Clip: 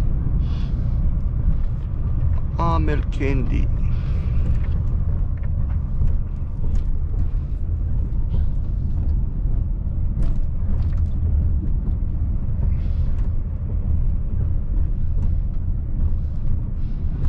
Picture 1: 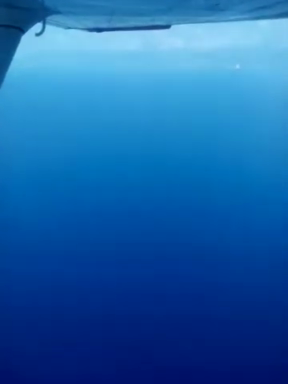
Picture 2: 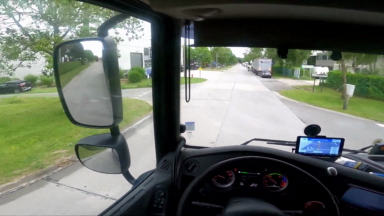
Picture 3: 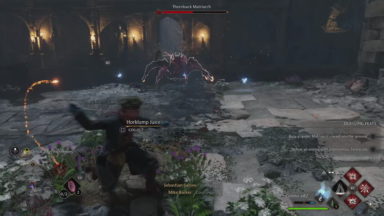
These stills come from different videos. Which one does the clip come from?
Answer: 2